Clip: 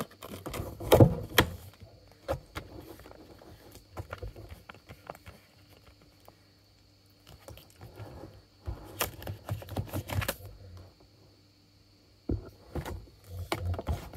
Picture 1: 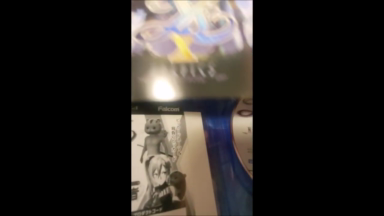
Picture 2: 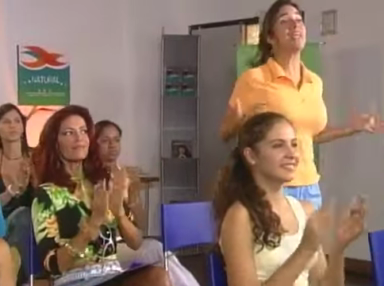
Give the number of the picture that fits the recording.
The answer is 1